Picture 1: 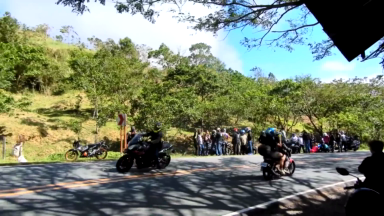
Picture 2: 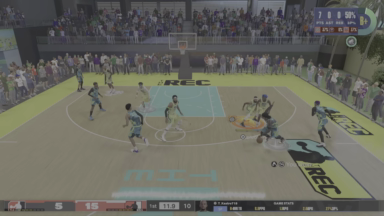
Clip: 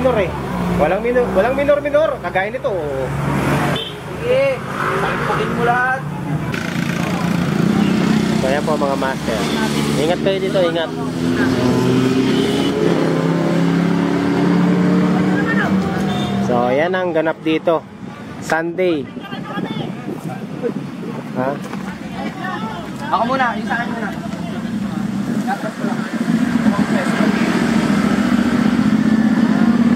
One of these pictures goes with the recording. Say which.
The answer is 1